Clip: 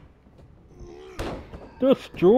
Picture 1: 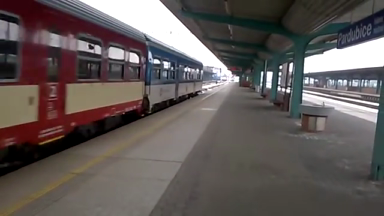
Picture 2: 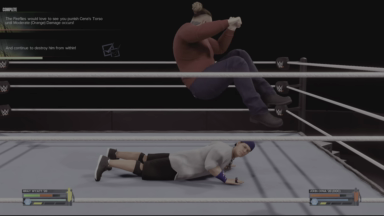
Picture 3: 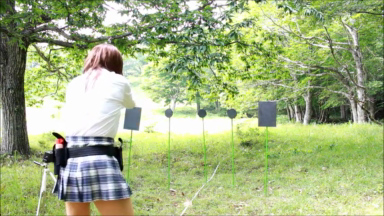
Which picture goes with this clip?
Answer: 2